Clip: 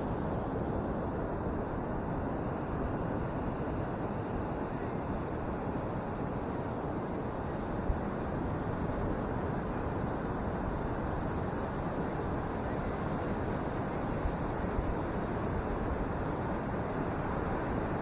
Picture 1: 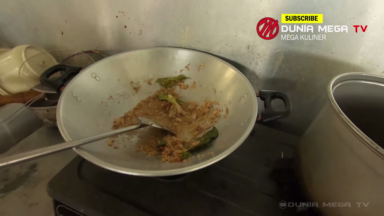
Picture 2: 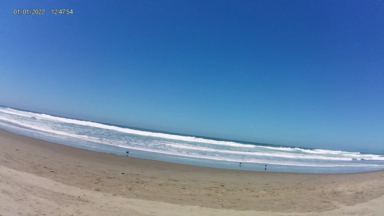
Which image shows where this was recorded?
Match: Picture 2